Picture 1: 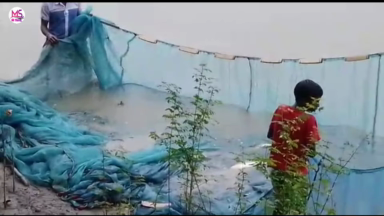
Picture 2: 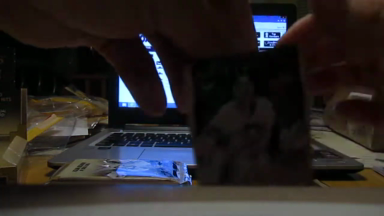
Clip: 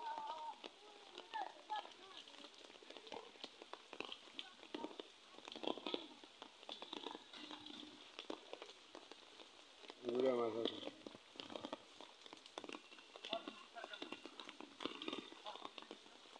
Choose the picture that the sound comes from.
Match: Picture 1